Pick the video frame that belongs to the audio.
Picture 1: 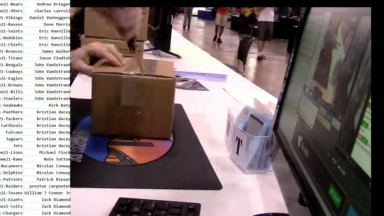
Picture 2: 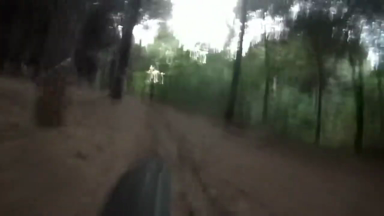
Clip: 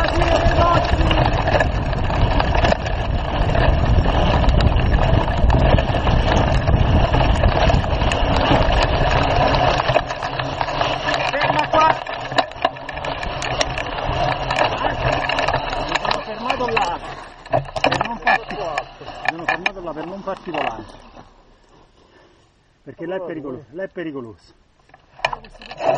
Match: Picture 2